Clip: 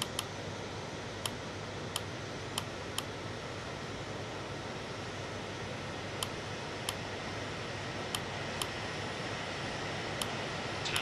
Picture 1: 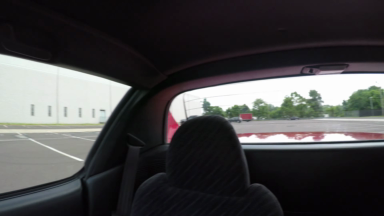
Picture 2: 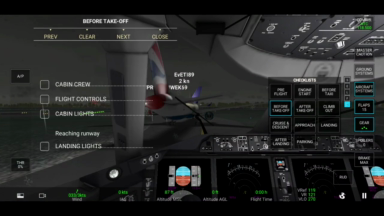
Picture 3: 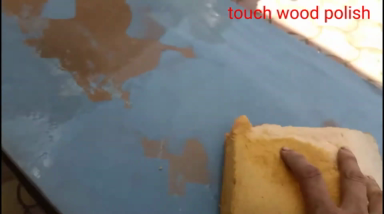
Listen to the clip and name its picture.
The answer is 2